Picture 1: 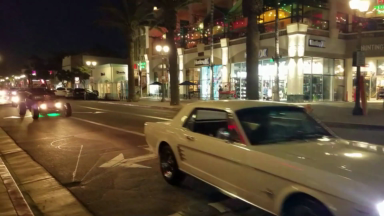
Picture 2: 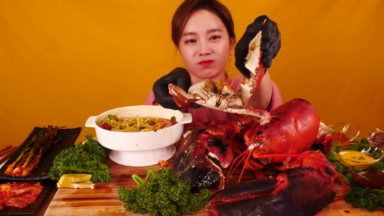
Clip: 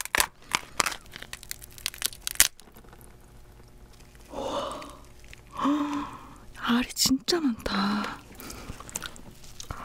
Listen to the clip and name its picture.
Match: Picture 2